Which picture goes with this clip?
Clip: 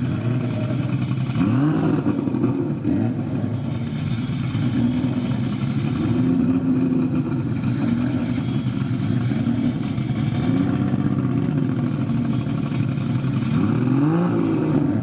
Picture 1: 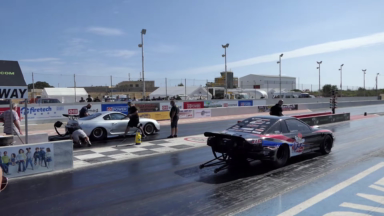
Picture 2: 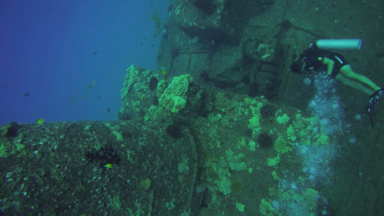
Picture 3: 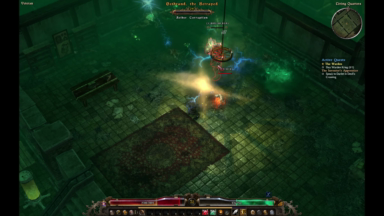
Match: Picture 1